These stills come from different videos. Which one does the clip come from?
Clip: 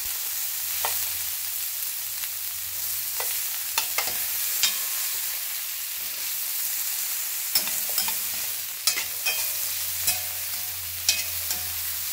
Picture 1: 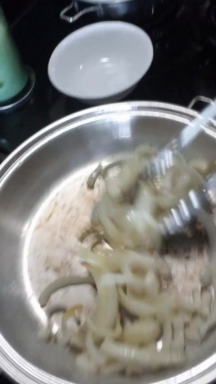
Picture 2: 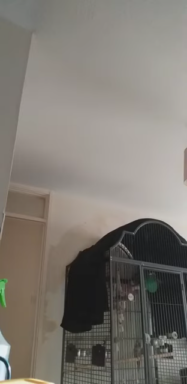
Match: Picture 1